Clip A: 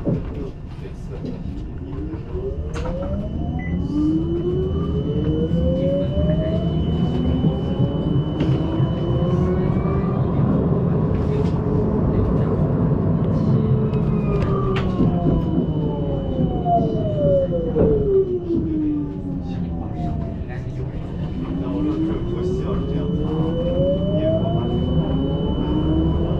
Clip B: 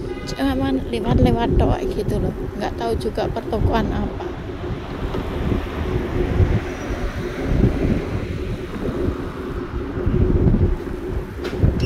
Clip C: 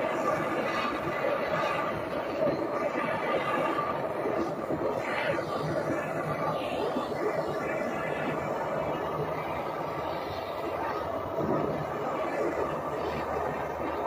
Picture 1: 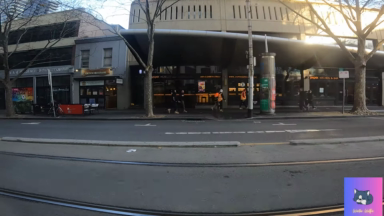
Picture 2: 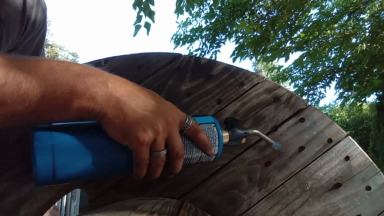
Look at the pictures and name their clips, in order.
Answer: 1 A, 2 C